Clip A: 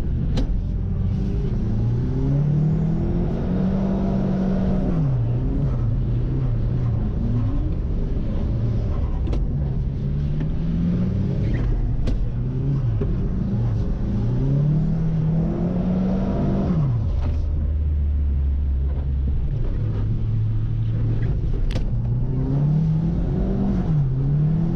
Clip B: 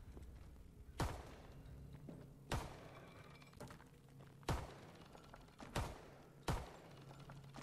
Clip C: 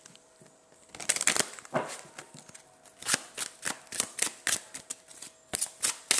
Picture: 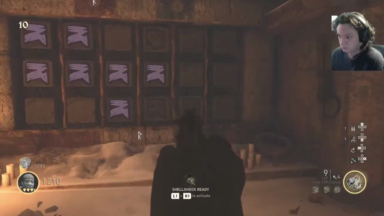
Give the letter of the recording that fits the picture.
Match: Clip B